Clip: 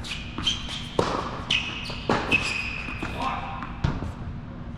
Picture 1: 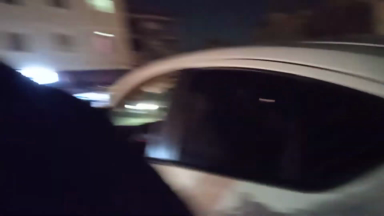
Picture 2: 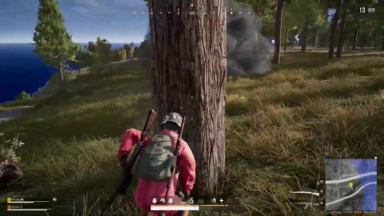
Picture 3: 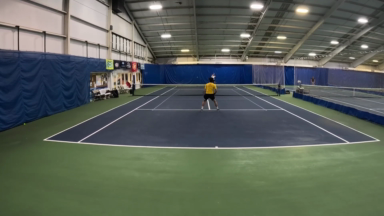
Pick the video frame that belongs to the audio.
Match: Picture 3